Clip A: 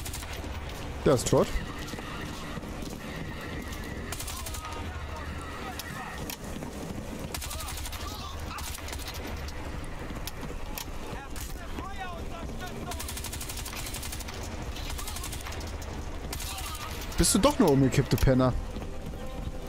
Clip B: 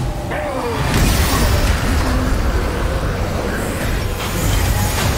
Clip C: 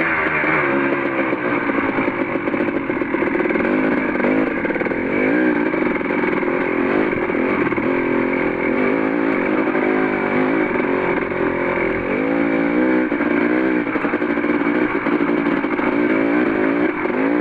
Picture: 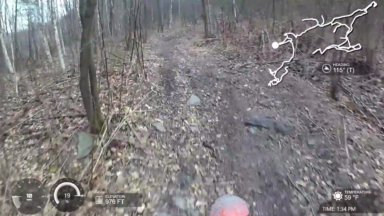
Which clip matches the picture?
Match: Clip C